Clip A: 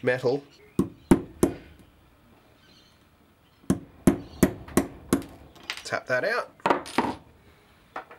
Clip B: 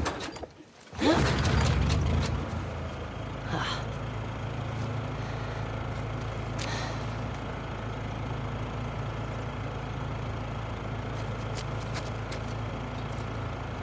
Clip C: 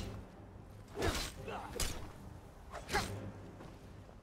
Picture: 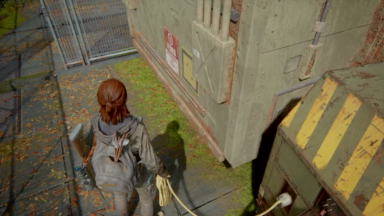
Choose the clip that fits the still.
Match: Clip B